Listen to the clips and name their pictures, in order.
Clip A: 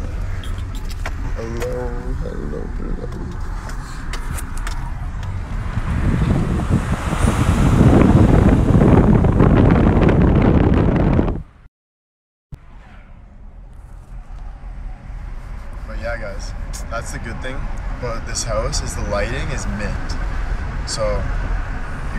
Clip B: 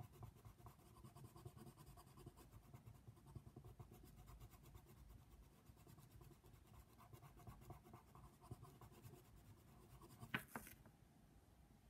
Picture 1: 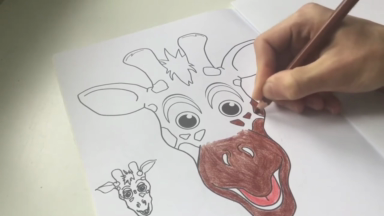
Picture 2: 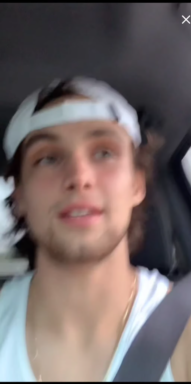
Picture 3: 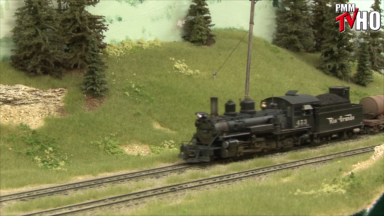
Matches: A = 2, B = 1